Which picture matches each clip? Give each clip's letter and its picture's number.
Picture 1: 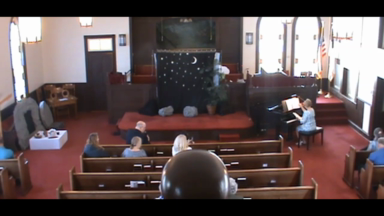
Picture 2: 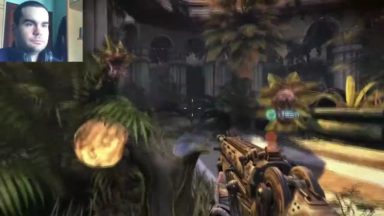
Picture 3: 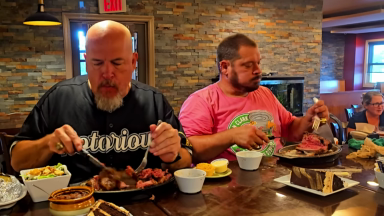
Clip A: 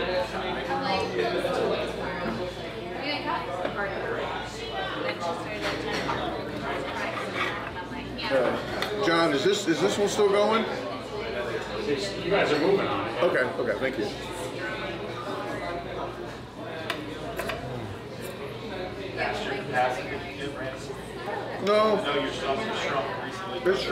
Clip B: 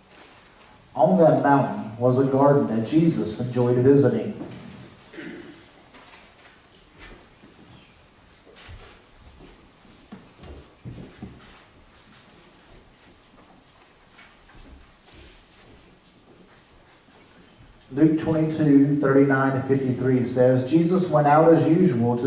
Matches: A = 3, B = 1